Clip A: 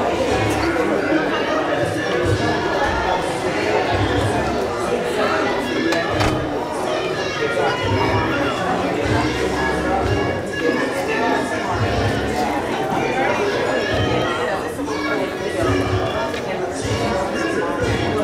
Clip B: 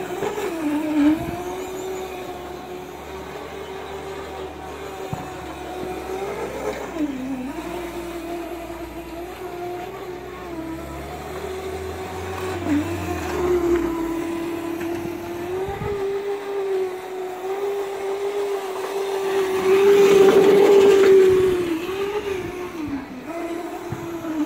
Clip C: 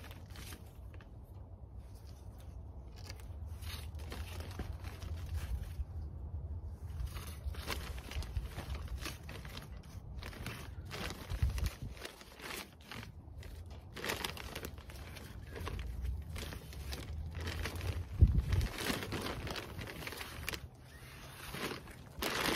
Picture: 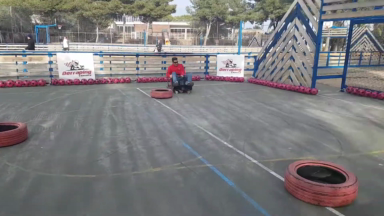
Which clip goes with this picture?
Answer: B